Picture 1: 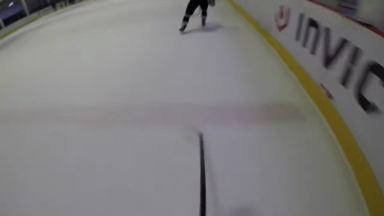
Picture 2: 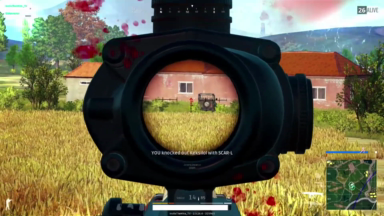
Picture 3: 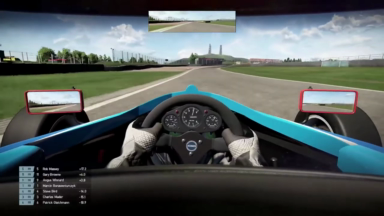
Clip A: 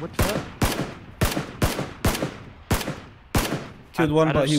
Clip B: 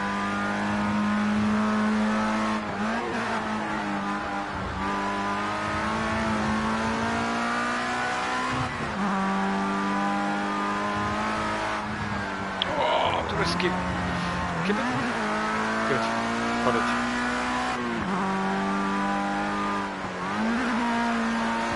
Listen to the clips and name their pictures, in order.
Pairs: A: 2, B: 3